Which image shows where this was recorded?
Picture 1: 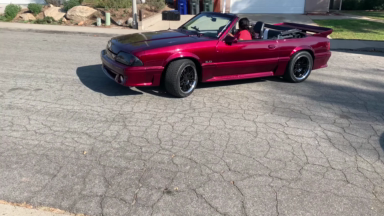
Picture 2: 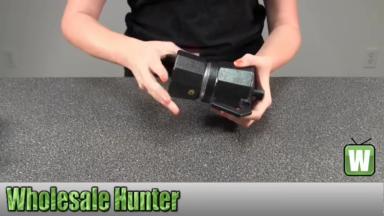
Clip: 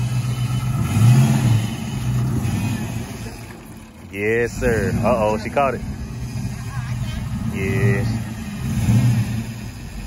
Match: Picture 1